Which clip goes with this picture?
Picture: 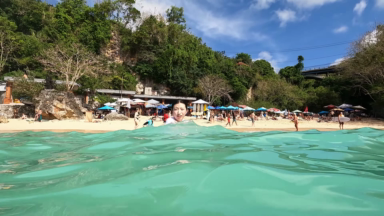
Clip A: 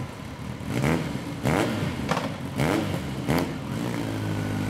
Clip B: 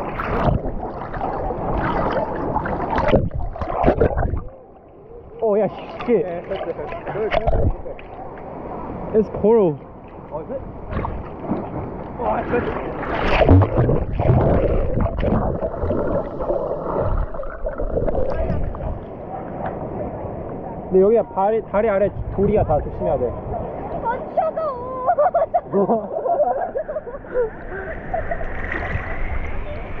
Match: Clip B